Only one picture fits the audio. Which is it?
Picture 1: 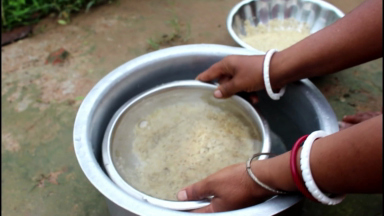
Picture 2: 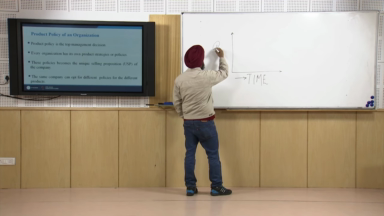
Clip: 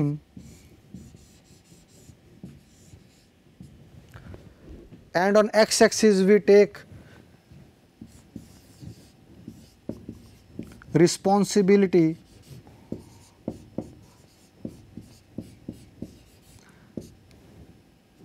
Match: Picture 2